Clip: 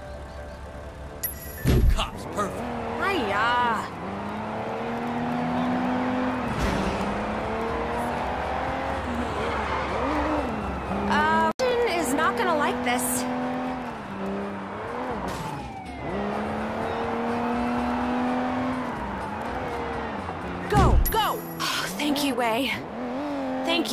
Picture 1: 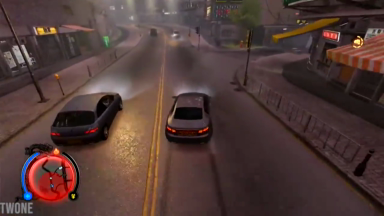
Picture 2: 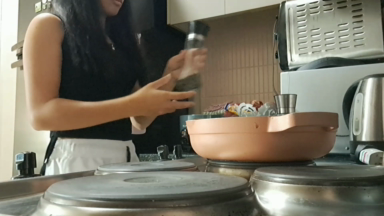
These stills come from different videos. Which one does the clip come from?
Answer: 1